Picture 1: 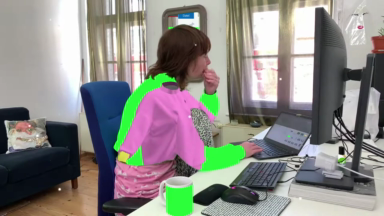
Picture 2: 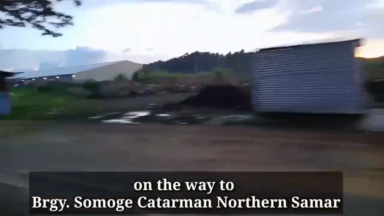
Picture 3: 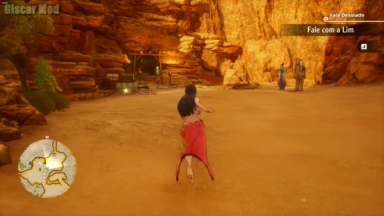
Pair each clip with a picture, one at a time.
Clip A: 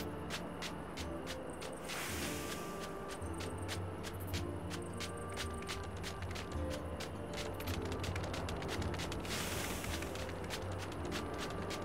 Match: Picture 3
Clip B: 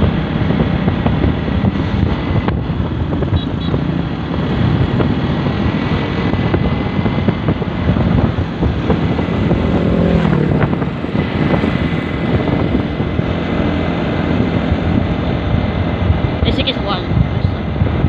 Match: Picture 2